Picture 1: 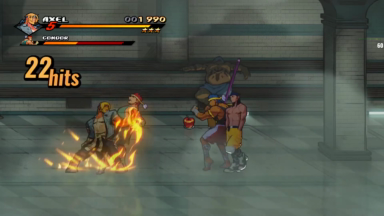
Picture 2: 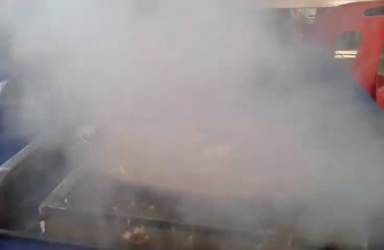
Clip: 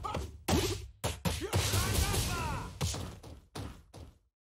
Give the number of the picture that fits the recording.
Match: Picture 1